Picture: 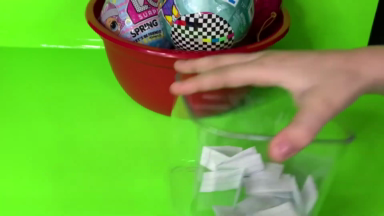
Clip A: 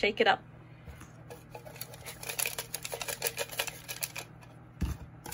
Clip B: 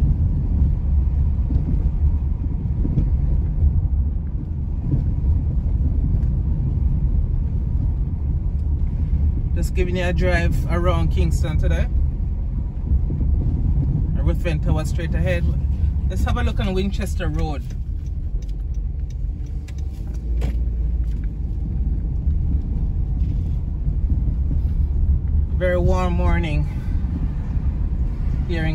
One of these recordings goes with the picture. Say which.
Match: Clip A